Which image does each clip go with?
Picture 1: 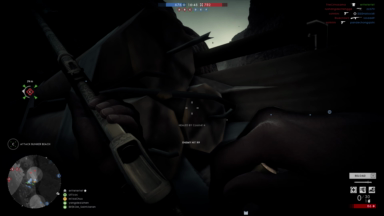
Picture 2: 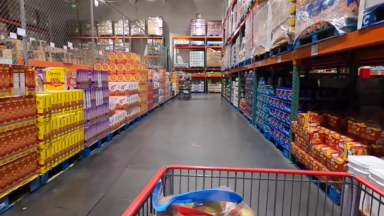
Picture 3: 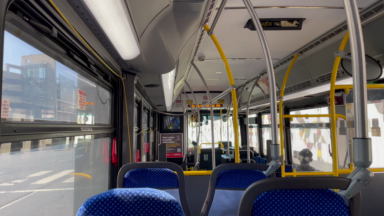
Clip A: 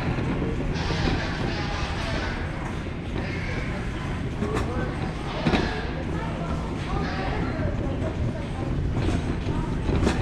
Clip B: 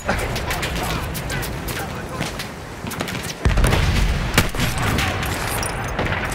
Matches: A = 2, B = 1